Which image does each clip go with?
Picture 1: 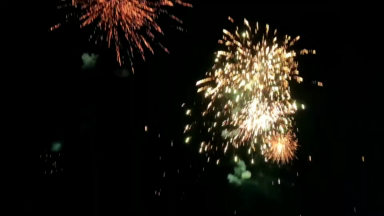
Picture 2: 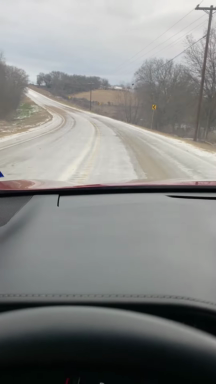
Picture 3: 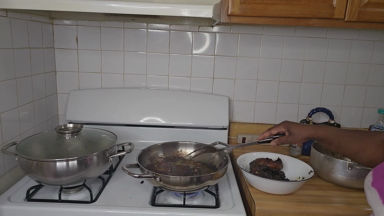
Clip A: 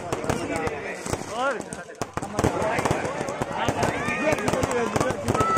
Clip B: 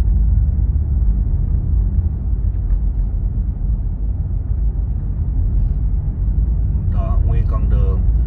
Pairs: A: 1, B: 2